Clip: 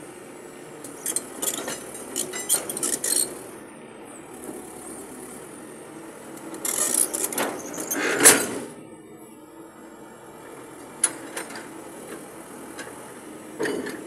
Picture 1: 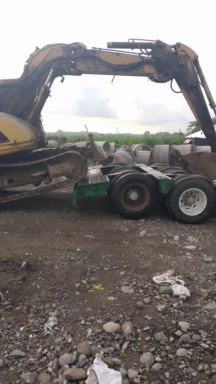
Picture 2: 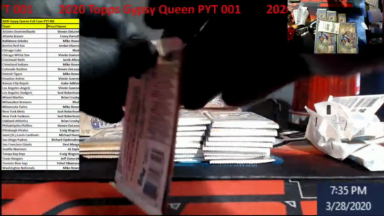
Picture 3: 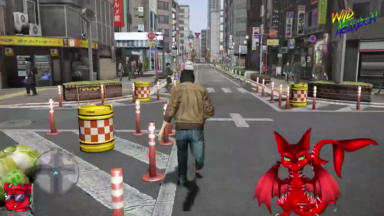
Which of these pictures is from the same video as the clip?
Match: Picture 1